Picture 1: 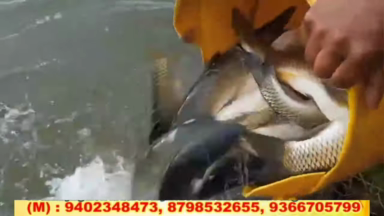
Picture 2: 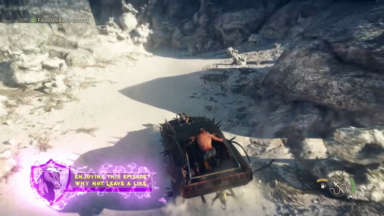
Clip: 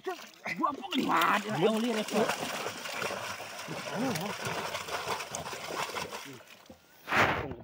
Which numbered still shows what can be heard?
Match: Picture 1